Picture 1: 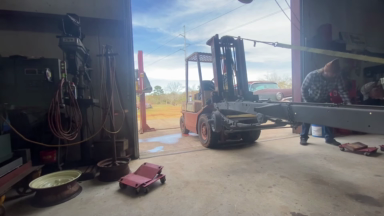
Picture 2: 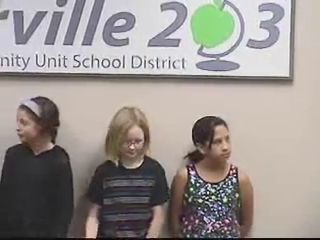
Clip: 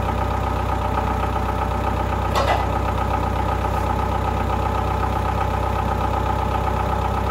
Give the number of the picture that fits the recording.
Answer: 1